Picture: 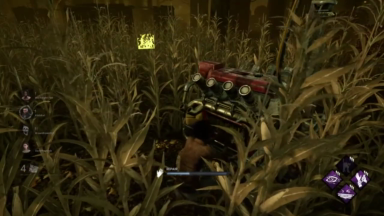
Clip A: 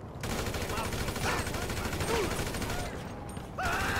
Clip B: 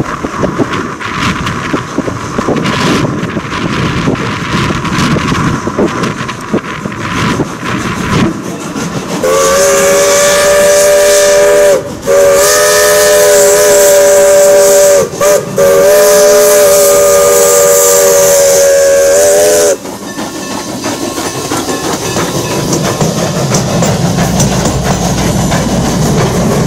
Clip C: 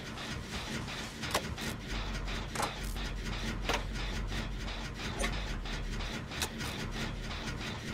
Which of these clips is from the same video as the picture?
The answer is C